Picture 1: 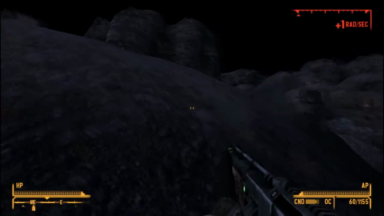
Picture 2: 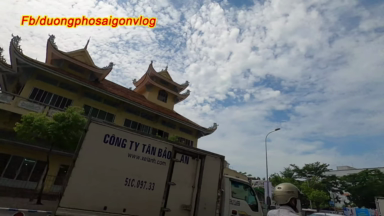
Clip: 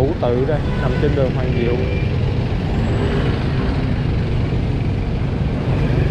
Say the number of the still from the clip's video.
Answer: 2